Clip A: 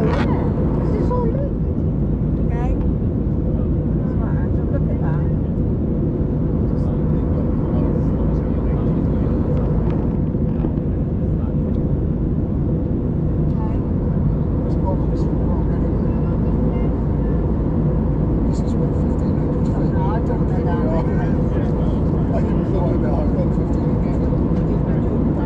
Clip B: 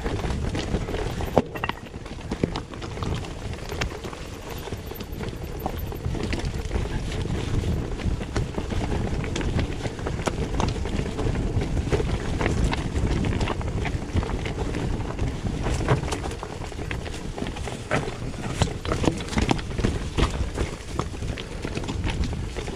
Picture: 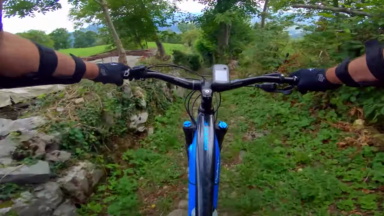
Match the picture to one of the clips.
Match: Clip B